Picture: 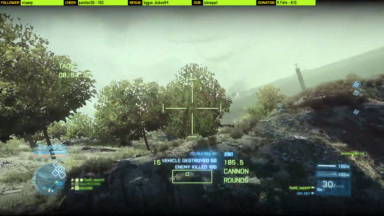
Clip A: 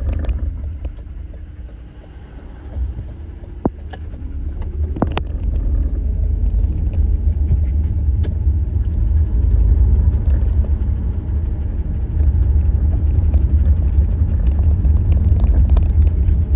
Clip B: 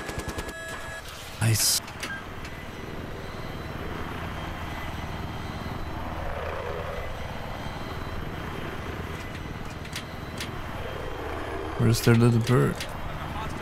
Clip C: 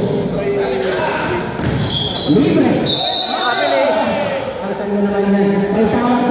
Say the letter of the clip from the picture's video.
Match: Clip B